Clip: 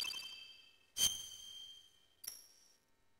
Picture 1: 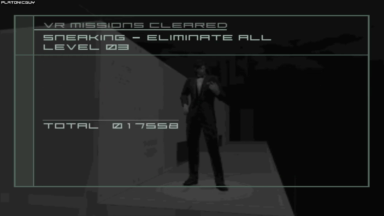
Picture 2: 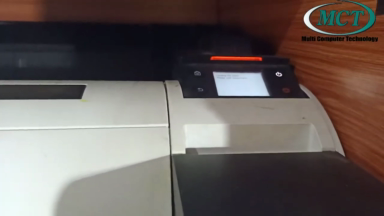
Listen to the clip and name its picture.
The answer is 1